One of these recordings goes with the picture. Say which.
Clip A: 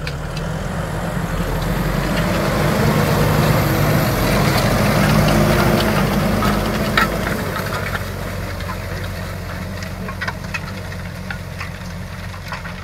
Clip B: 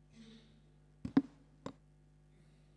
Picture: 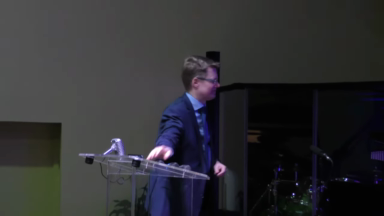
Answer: B